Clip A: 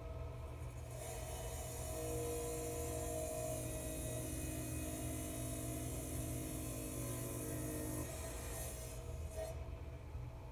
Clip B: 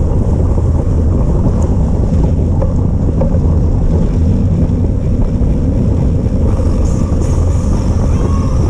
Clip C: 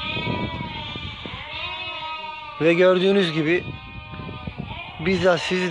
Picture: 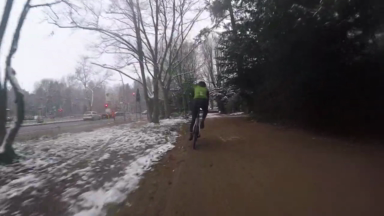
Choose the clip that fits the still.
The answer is B